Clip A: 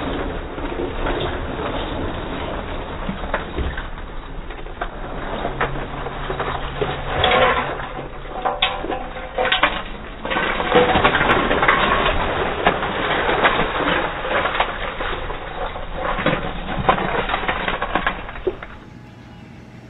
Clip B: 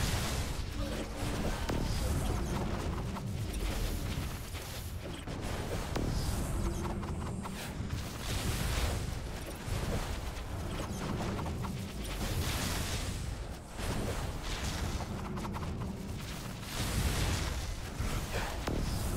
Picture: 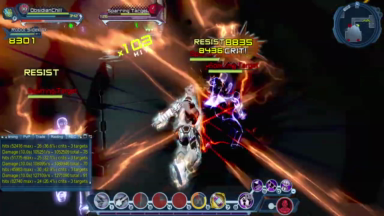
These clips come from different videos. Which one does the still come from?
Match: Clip B